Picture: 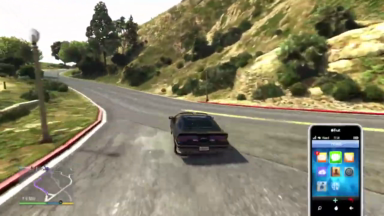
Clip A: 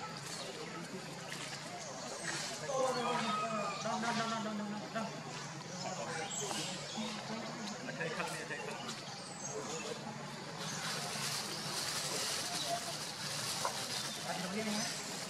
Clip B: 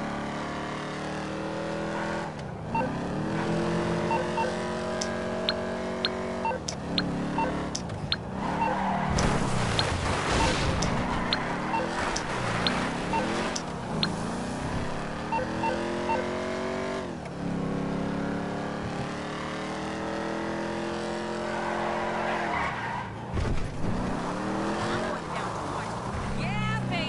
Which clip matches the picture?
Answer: B